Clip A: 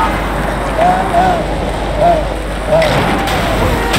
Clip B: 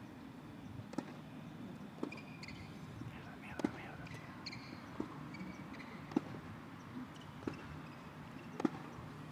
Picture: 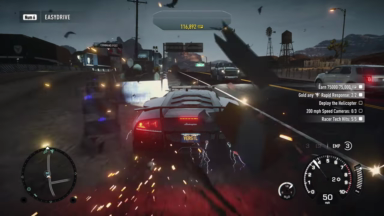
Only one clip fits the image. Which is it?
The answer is A